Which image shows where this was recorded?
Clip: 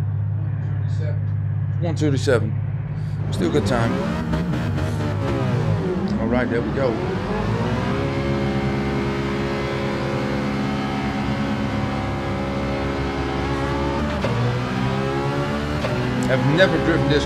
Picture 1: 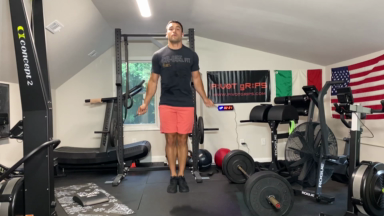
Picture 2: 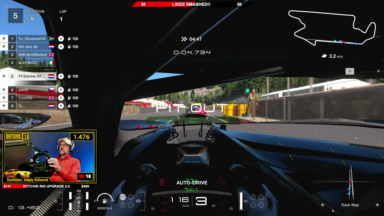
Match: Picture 2